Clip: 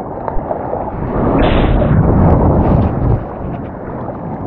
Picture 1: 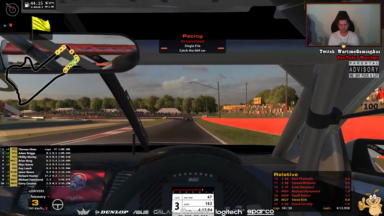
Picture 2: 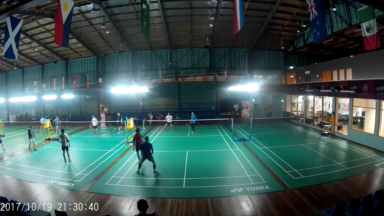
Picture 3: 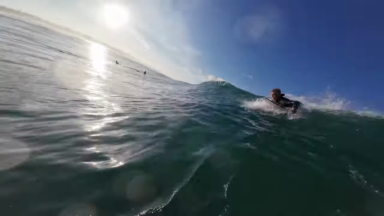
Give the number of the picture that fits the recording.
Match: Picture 3